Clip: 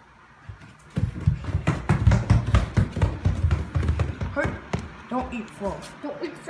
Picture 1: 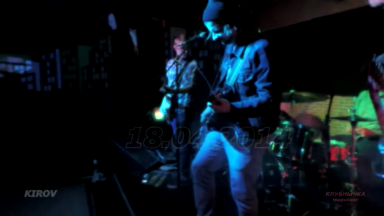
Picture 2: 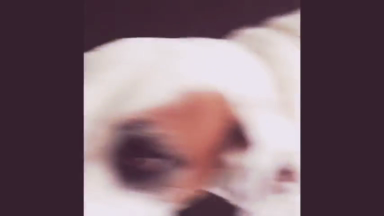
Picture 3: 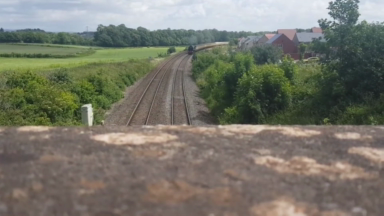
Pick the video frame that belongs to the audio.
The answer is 2